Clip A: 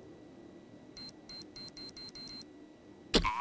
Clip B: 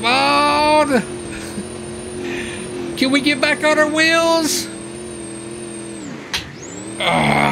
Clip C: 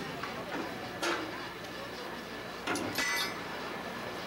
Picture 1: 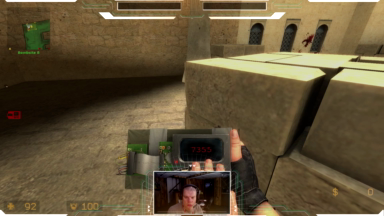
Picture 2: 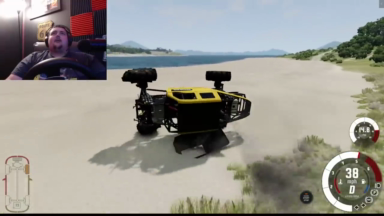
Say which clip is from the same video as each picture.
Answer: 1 A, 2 B